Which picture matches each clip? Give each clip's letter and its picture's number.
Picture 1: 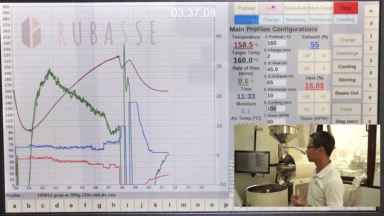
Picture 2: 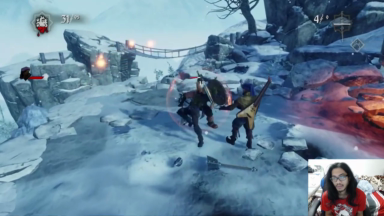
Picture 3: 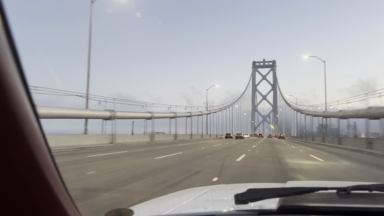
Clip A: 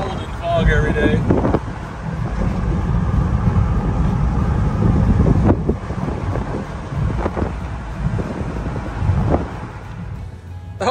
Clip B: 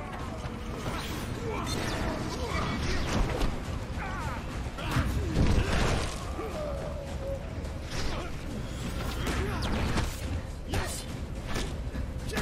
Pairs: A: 3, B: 2